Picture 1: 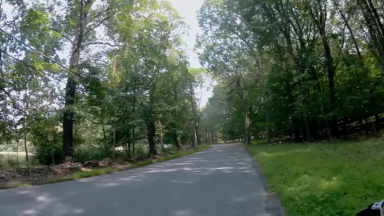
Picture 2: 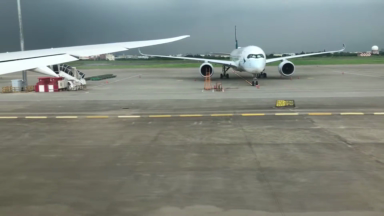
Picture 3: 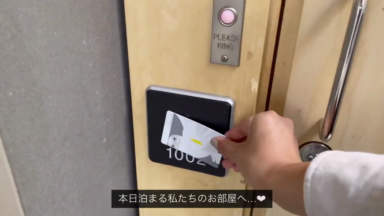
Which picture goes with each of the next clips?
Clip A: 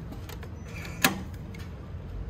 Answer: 3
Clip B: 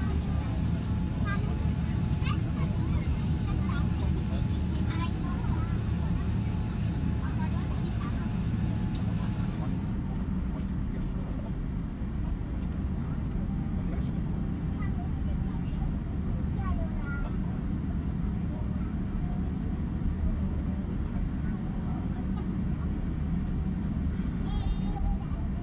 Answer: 2